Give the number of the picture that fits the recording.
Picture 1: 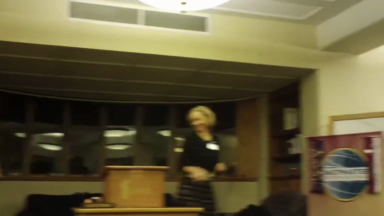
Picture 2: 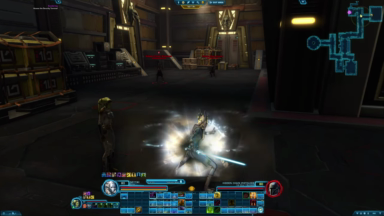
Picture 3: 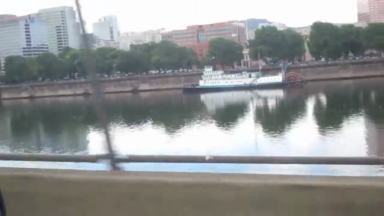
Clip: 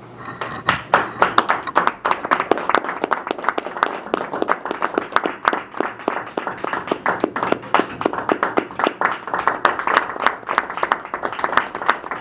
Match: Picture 1